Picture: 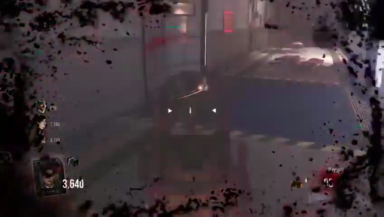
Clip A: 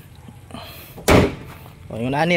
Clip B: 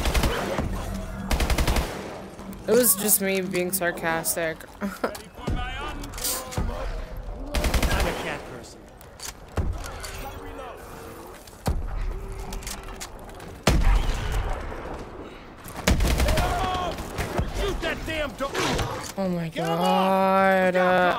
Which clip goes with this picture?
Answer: B